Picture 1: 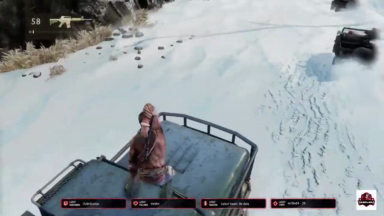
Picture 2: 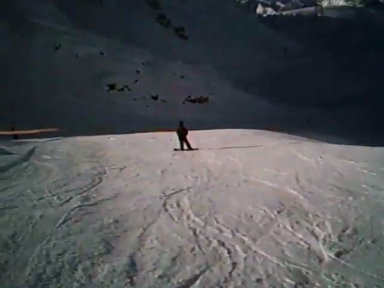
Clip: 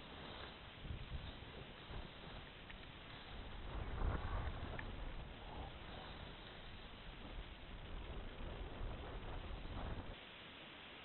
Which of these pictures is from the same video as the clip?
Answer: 2